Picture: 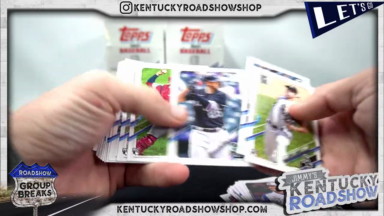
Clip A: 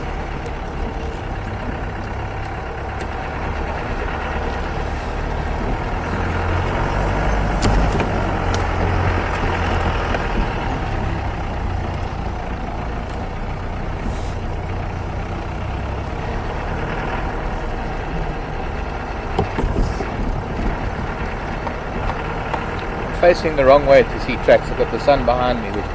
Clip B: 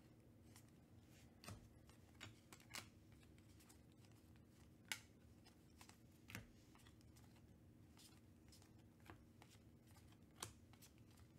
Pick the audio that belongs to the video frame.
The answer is B